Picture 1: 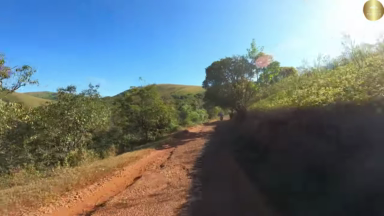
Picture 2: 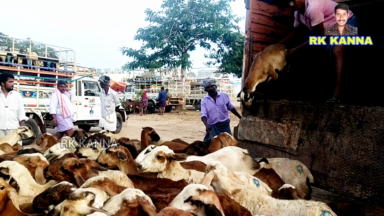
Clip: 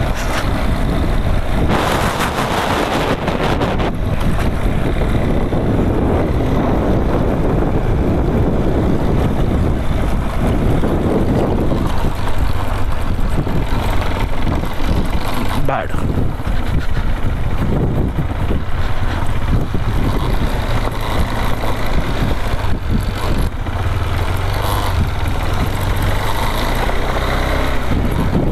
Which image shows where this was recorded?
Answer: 1